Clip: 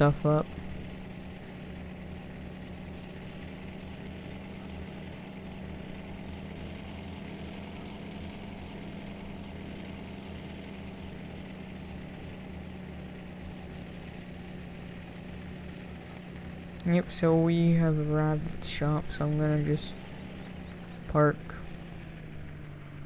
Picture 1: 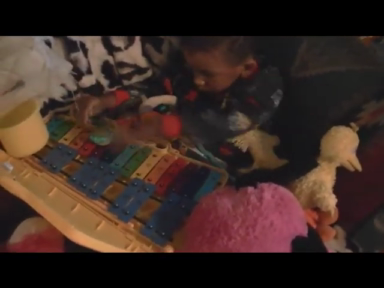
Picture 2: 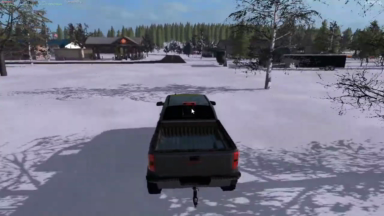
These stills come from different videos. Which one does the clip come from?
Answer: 2